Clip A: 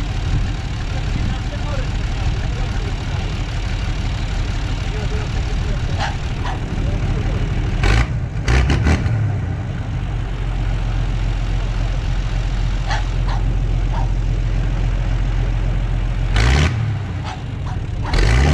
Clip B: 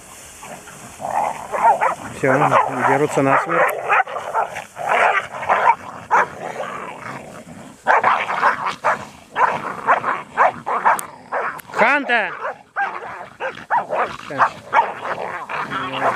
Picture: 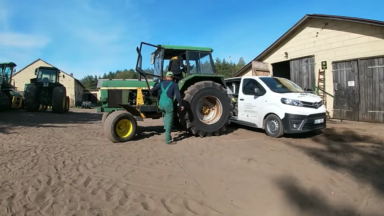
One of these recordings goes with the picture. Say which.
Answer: A